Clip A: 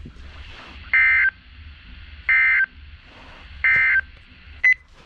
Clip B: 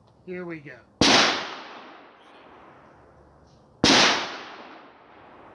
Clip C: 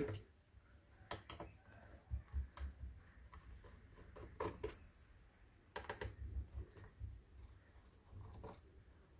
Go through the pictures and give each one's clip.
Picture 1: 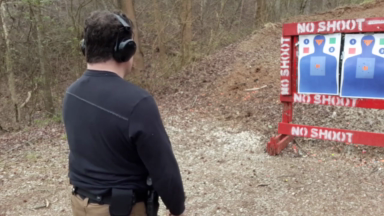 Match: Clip B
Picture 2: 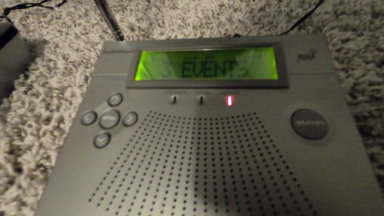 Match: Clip A